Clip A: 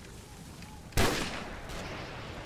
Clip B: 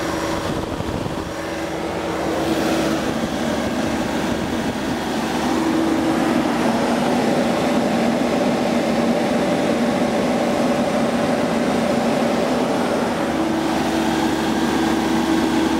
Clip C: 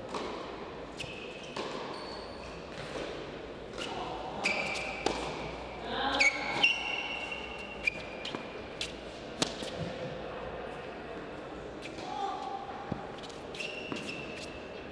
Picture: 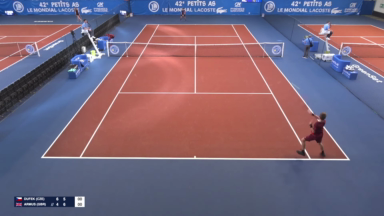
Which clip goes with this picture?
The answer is C